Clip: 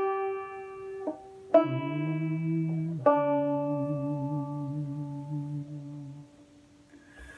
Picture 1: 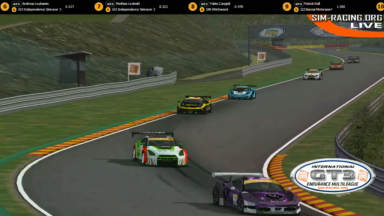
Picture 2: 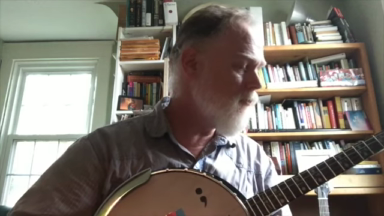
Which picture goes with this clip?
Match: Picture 2